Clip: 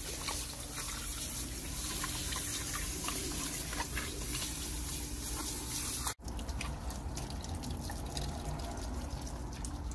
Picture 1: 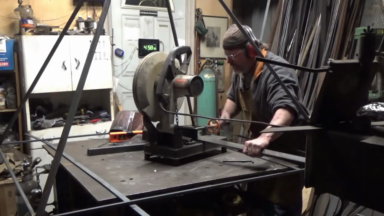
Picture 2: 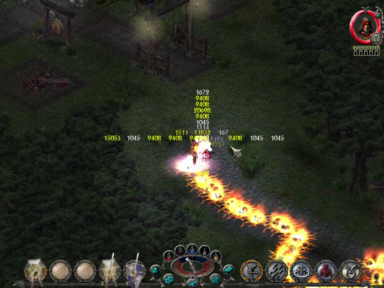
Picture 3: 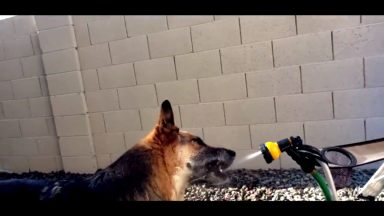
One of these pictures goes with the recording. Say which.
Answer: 3